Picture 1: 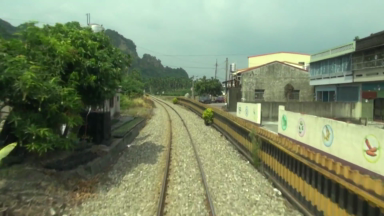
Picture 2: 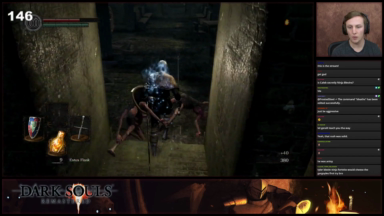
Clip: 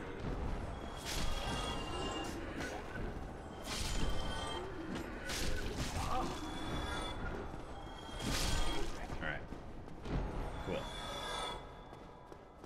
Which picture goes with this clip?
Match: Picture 2